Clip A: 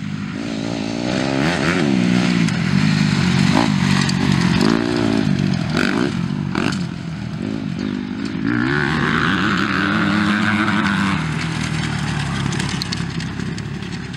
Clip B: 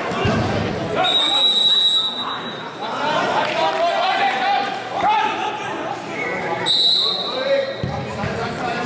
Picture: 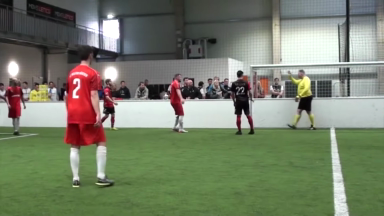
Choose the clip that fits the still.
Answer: B